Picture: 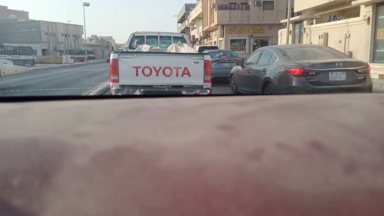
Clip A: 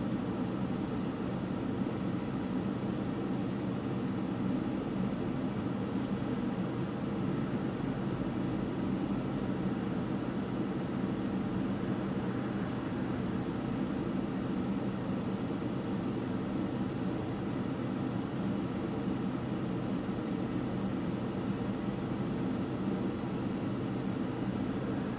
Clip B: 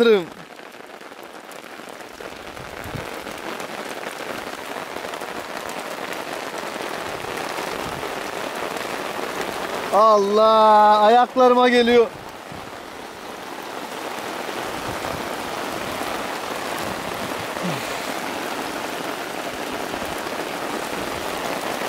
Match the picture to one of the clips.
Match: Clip A